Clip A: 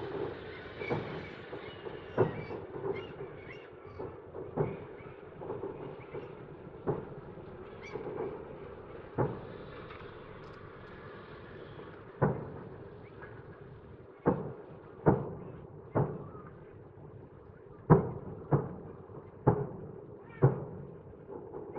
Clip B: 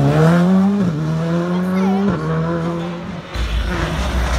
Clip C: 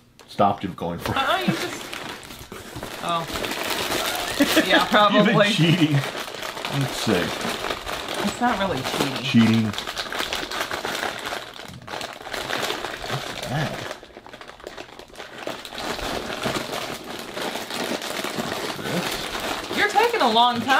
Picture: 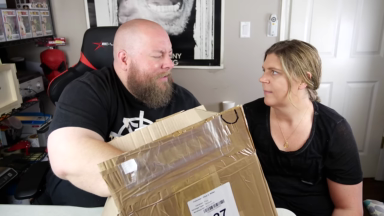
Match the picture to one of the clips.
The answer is C